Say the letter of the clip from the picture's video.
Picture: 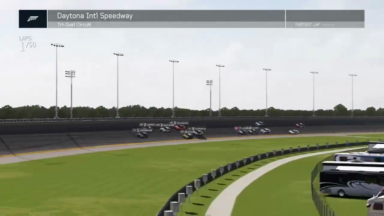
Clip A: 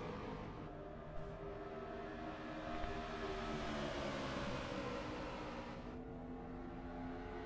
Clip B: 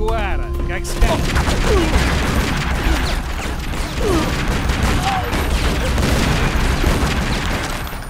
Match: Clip A